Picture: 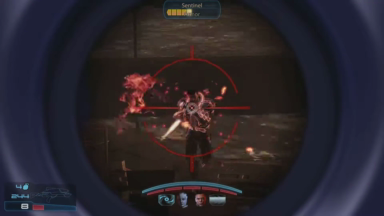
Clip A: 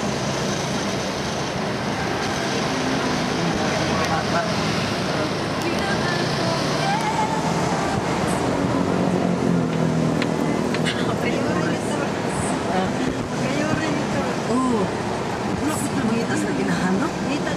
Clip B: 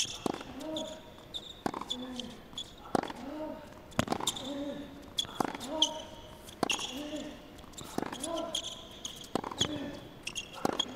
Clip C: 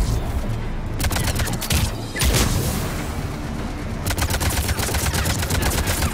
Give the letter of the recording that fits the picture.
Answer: C